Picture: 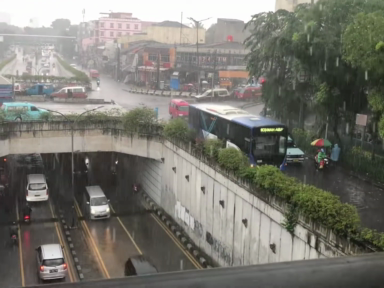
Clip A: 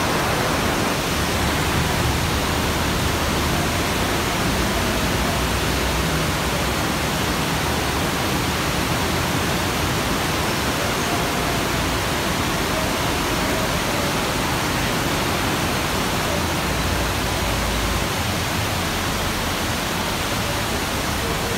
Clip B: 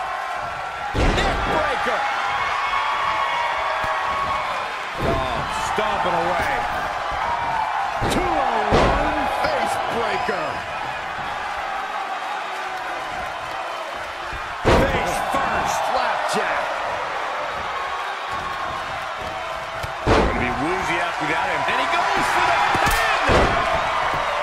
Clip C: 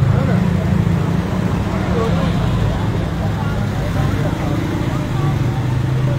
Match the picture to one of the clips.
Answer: A